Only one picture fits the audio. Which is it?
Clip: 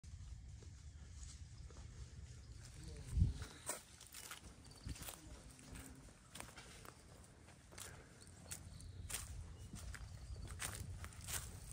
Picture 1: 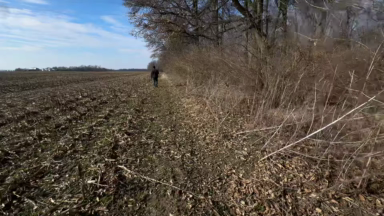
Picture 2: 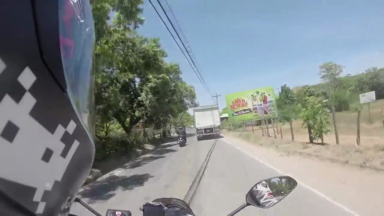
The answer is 1